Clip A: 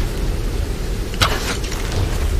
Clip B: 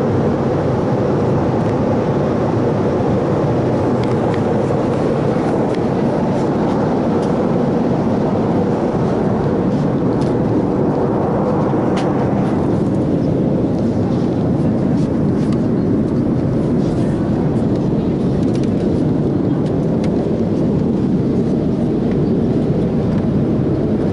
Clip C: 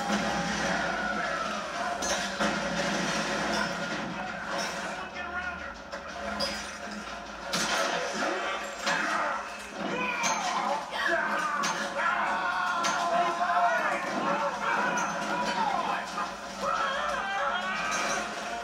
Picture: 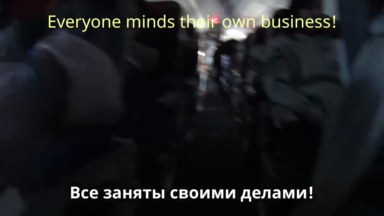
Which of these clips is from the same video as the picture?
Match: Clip B